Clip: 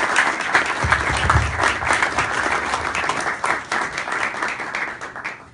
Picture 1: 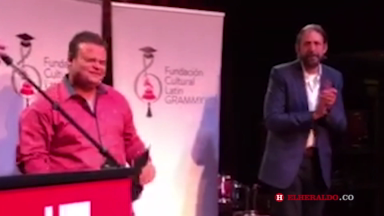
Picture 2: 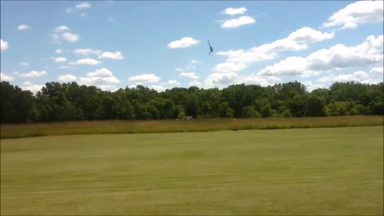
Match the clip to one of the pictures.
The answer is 1